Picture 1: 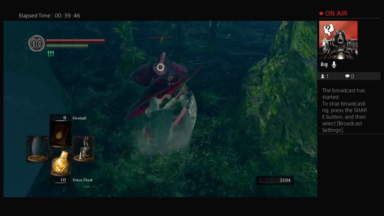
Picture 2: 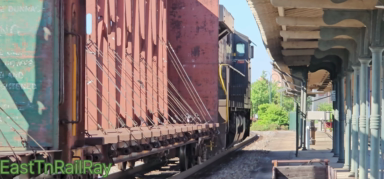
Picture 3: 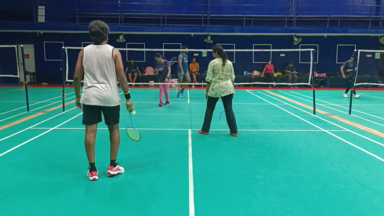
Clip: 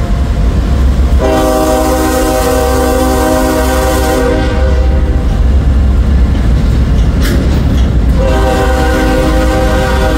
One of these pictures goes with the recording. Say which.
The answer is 2